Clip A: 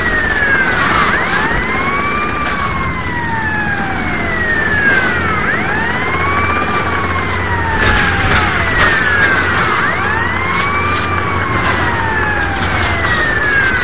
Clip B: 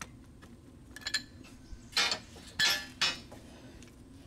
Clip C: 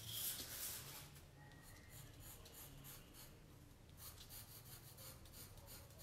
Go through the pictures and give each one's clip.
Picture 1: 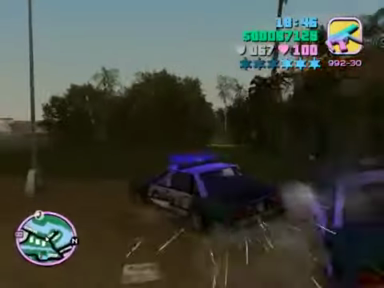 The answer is A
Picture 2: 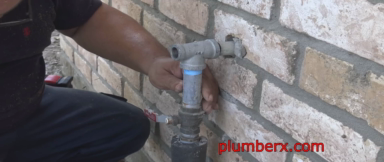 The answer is B